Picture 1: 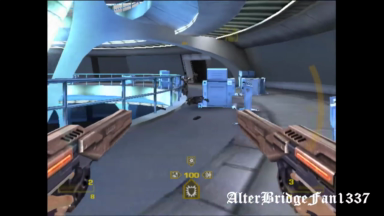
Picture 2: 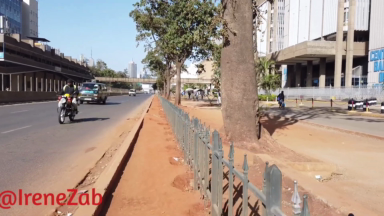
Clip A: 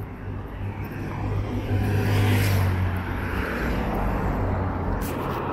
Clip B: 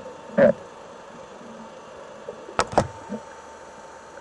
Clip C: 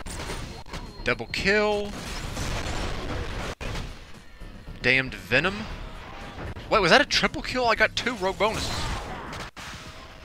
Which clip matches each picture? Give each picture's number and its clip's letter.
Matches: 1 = C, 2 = A